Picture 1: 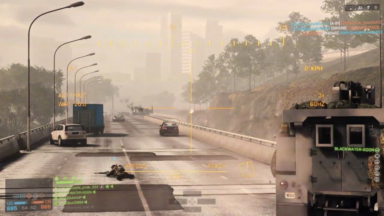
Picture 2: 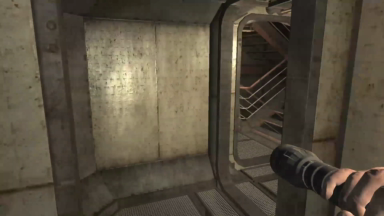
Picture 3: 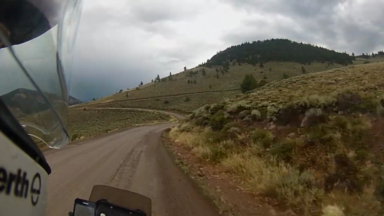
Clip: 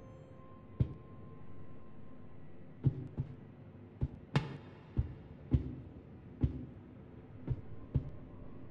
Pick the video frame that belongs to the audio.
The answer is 2